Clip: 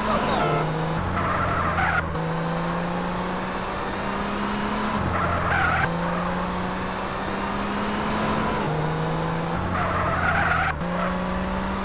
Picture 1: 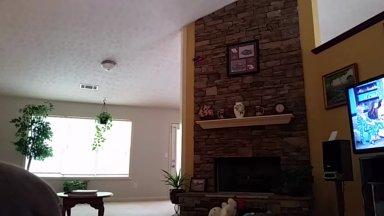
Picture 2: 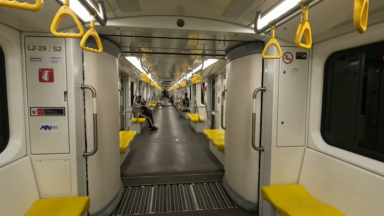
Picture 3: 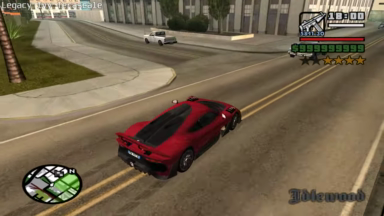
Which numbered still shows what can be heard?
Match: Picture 3